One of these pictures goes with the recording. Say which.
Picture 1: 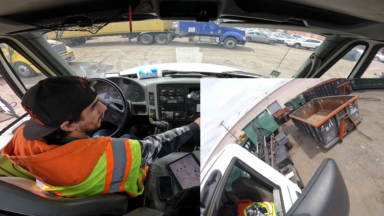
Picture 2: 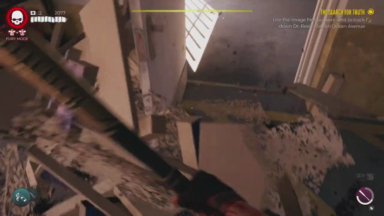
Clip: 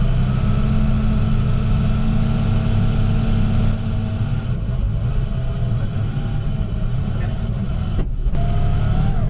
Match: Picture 1